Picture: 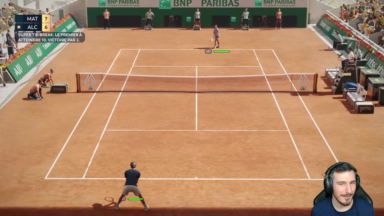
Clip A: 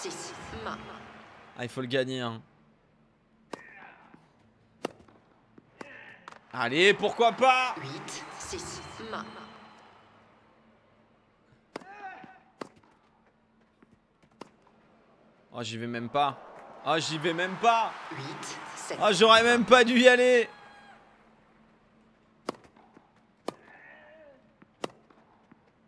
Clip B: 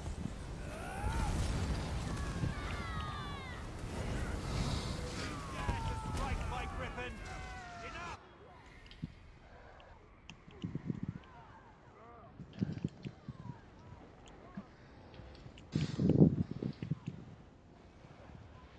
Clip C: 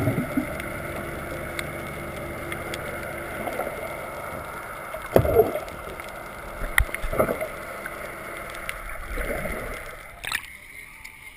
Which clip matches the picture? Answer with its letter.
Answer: A